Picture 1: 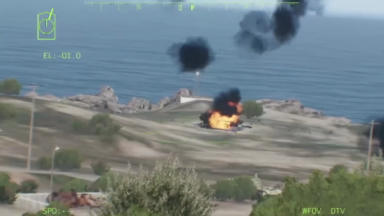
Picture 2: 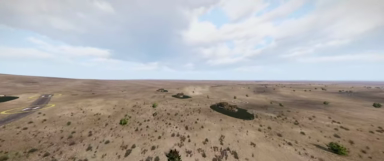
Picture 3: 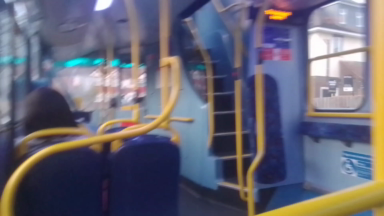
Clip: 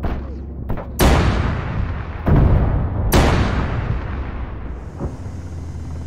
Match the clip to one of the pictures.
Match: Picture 1